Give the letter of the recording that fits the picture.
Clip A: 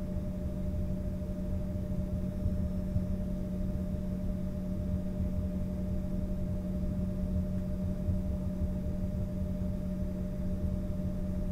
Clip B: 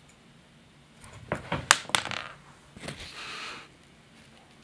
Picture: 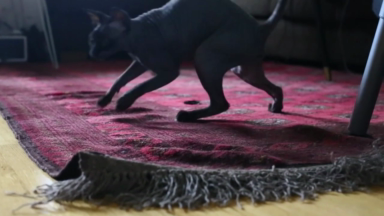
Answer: B